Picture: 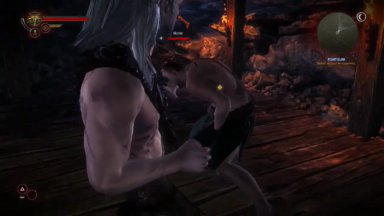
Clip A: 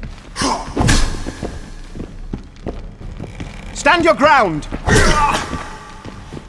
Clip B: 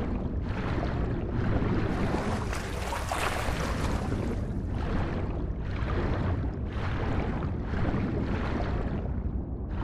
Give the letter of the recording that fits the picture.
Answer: A